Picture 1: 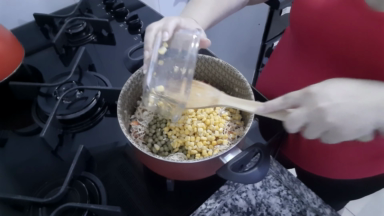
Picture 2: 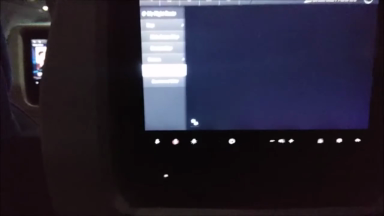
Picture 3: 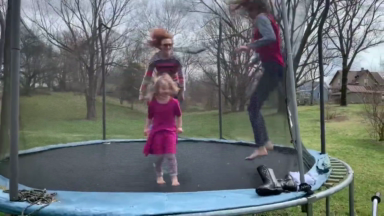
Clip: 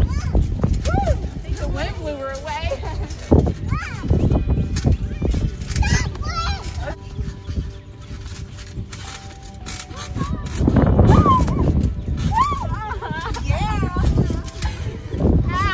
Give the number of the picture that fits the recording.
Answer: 3